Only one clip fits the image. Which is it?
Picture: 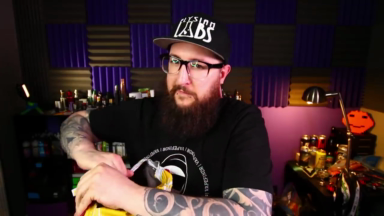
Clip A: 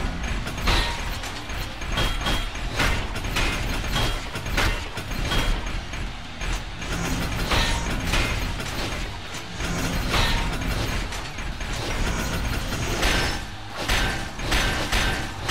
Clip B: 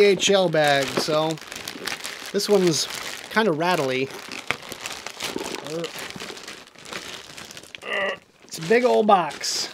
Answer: B